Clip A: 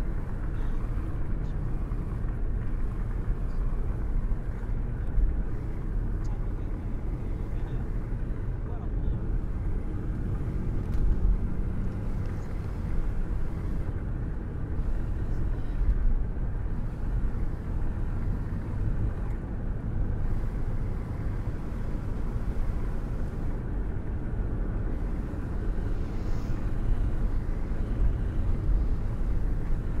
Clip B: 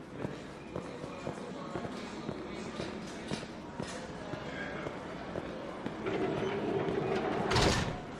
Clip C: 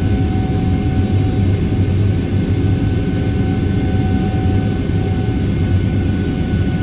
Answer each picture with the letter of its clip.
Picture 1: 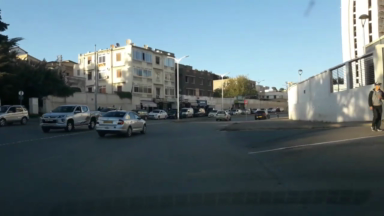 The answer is A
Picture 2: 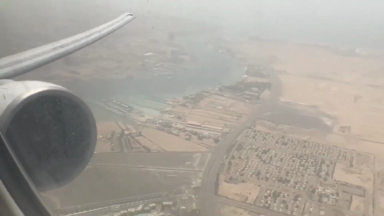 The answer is C